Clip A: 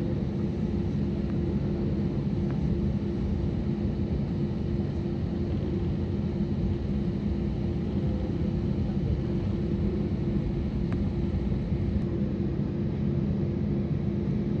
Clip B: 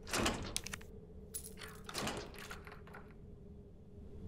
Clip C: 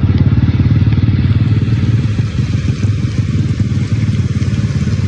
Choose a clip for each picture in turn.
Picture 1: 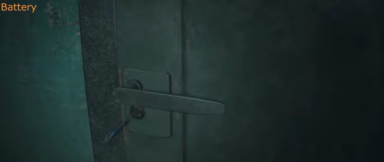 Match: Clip B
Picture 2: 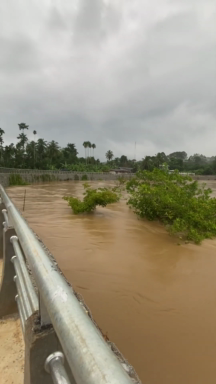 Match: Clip C